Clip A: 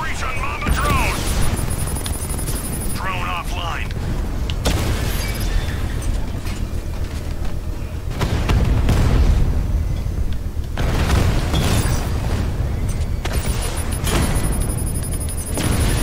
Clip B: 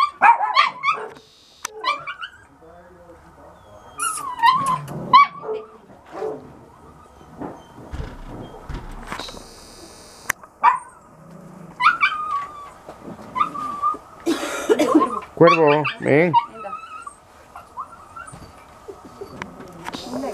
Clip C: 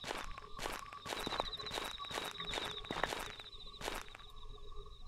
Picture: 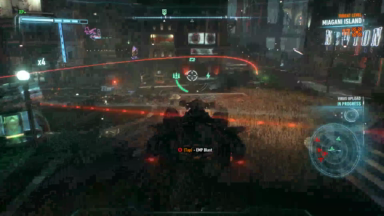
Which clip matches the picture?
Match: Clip A